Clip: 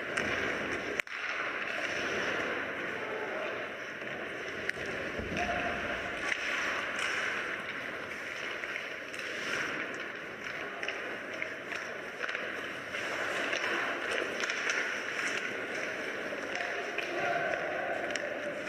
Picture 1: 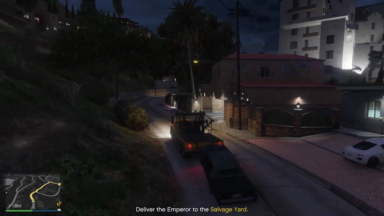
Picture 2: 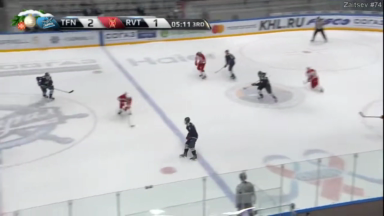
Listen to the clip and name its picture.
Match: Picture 2